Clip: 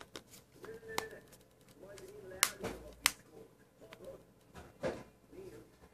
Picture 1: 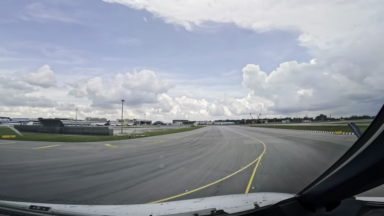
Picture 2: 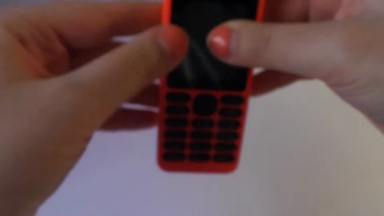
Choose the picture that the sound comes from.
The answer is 2